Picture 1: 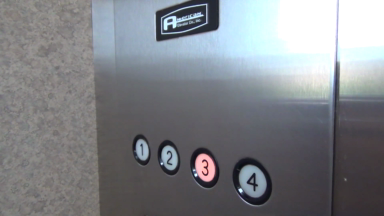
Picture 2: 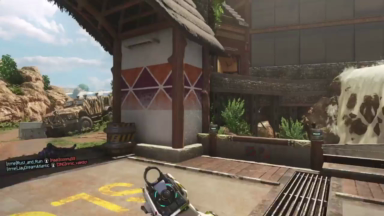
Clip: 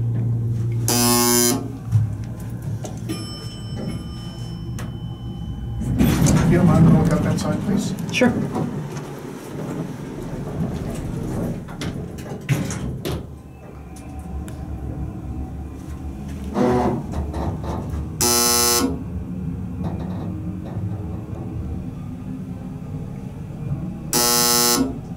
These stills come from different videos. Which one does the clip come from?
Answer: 1